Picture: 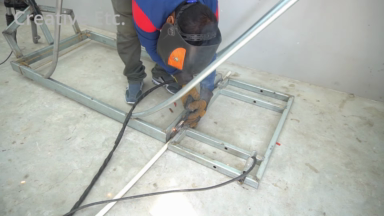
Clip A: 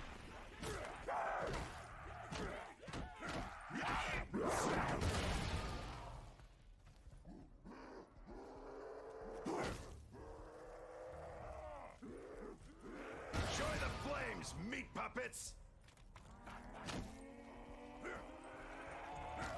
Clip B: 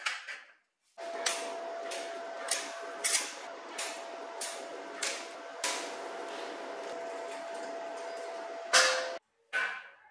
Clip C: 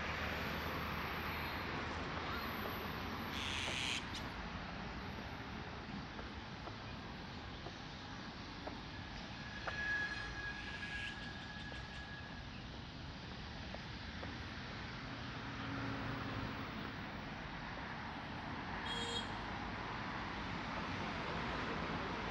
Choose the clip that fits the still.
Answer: B